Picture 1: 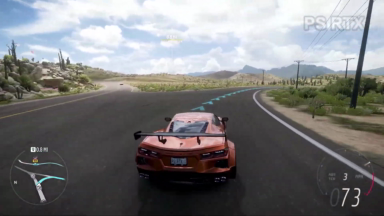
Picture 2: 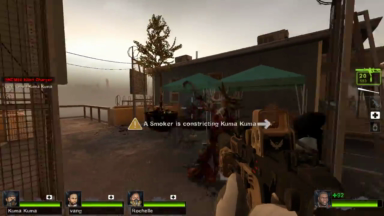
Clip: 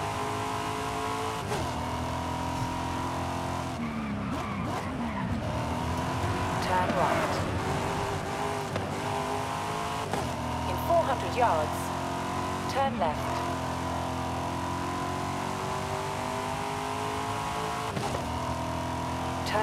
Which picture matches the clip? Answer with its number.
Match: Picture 1